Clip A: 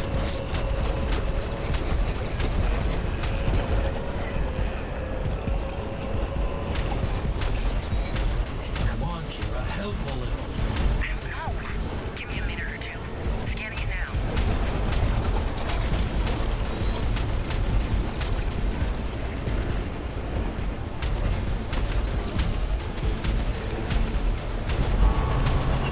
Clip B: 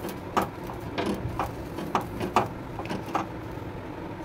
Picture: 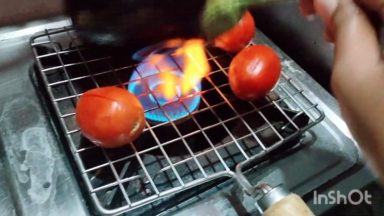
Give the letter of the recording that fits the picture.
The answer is B